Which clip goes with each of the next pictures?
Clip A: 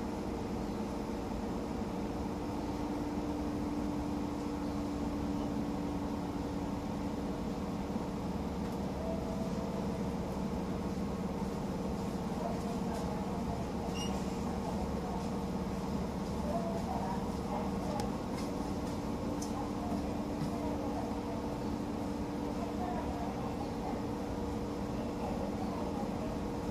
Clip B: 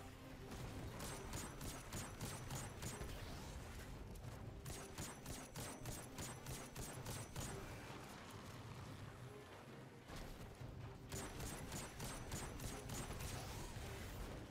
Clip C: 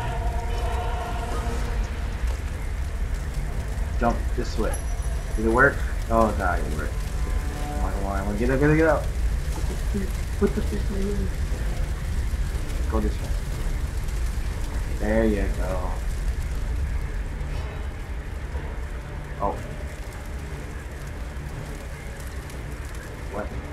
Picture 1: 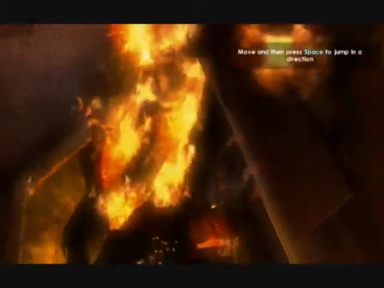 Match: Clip C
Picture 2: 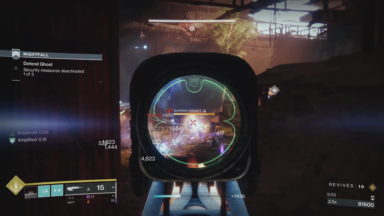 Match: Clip B